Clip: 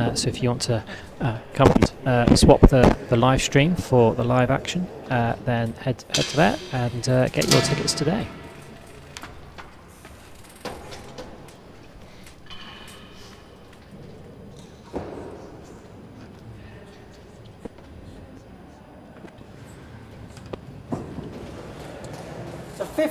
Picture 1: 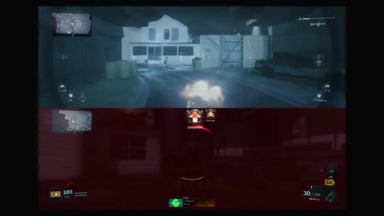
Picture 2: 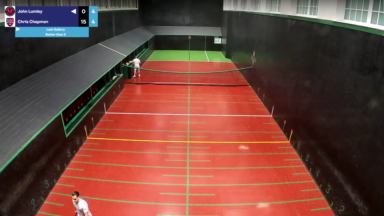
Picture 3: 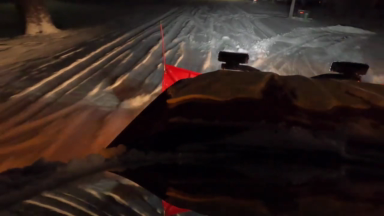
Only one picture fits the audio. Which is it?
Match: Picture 2